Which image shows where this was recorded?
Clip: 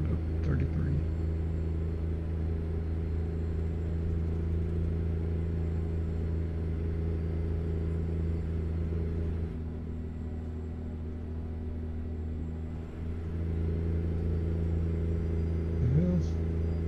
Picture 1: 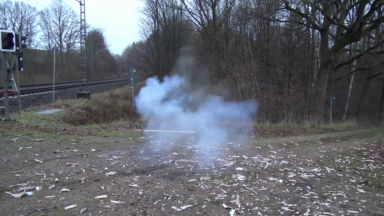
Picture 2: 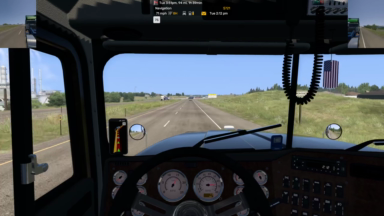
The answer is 2